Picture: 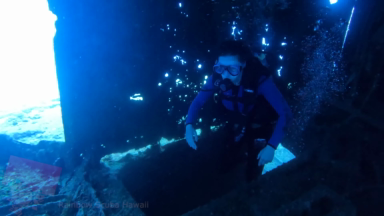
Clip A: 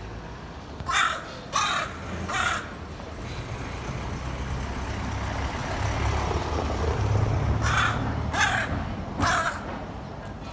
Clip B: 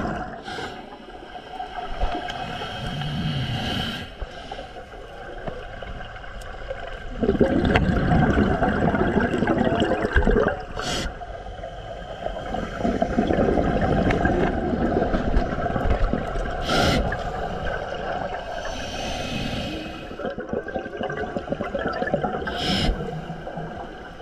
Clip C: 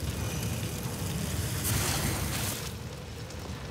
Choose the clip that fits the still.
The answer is B